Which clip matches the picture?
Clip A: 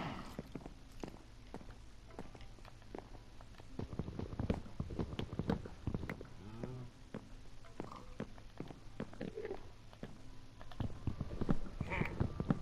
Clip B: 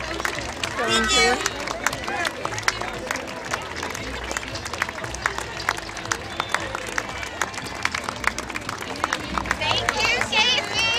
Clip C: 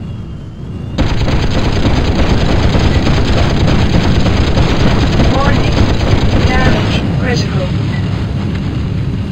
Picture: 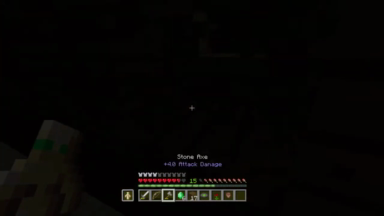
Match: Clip A